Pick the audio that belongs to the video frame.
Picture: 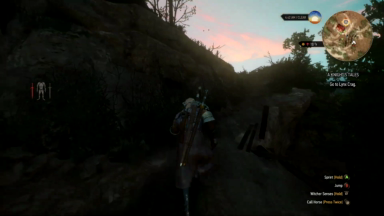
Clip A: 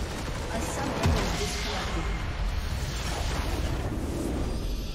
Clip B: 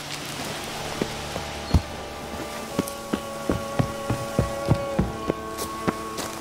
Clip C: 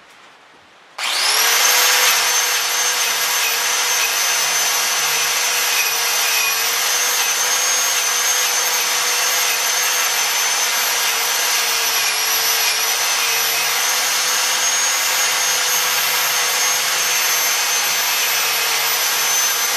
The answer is B